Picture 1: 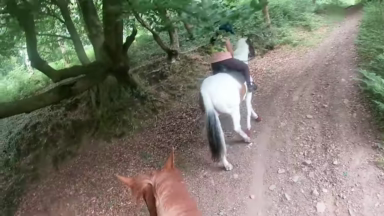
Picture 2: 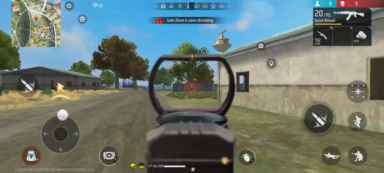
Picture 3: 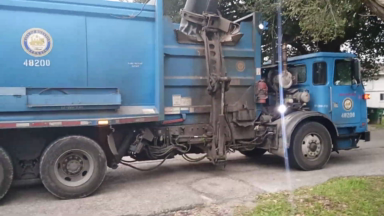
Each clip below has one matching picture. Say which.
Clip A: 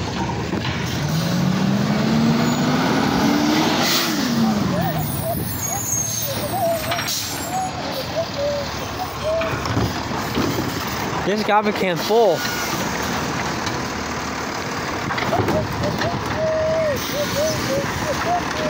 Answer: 3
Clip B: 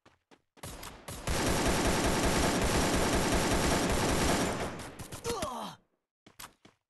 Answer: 2